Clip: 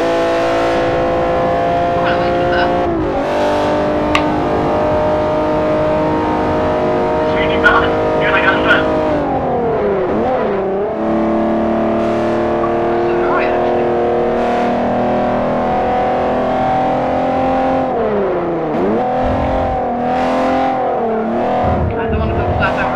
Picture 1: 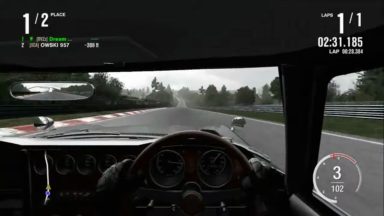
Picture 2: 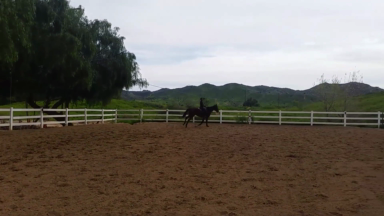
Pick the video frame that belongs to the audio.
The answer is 1